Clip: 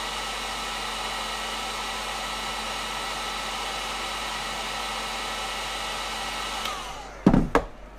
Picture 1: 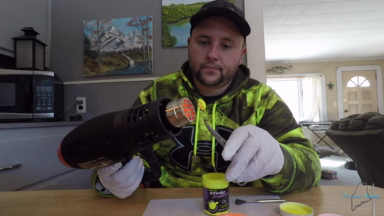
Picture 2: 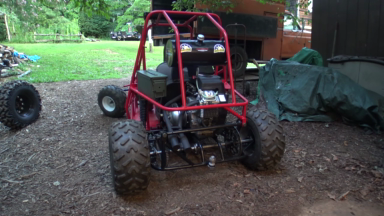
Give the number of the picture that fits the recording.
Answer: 1